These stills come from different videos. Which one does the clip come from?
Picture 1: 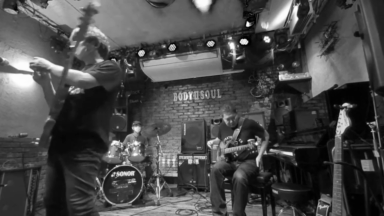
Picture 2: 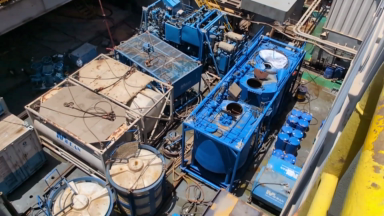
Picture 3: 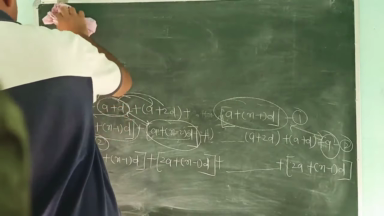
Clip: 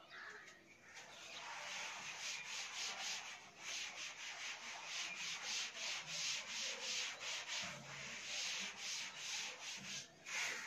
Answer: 3